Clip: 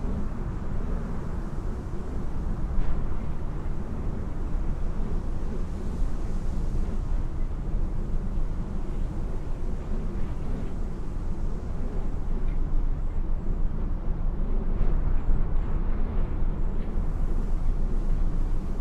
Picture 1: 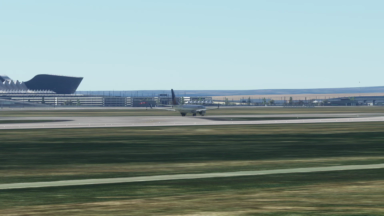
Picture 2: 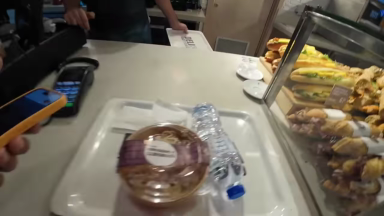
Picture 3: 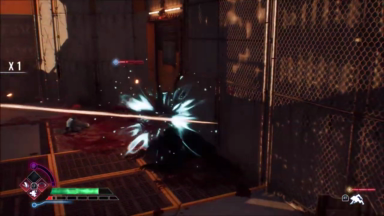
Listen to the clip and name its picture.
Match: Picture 1